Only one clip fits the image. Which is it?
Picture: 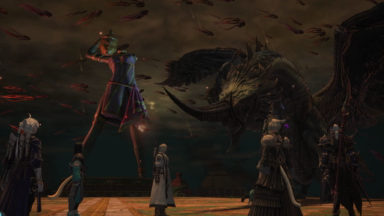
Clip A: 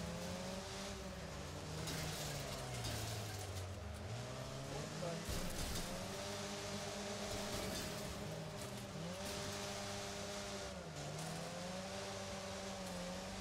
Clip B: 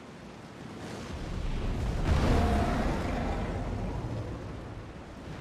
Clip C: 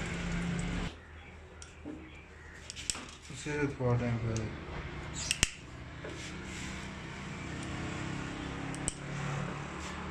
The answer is B